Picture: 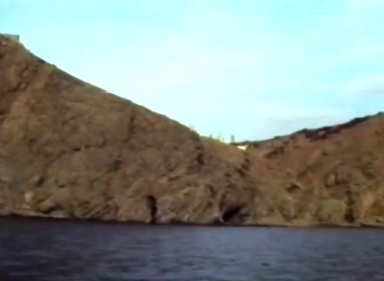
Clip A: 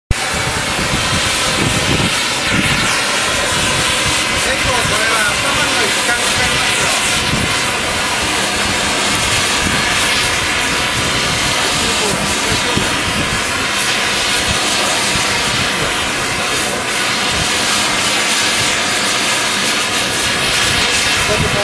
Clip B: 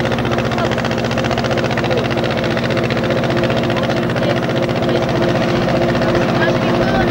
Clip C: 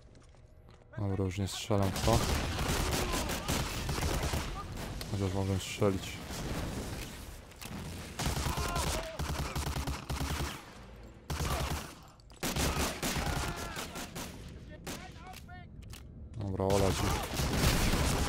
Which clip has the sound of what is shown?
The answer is B